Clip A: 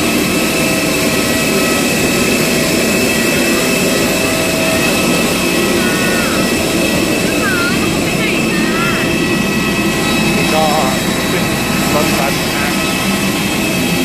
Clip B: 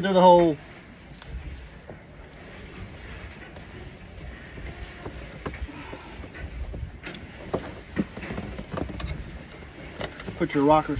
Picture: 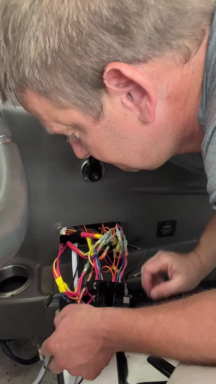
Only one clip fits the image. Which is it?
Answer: B